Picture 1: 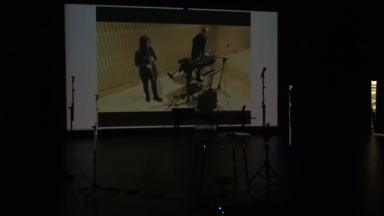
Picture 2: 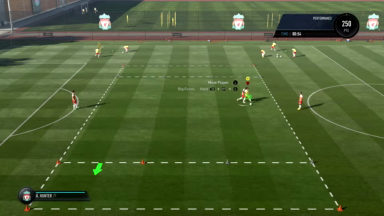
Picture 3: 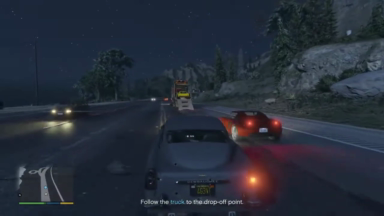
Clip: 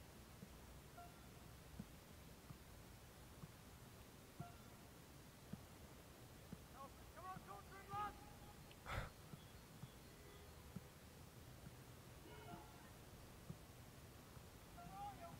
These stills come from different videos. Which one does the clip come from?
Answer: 2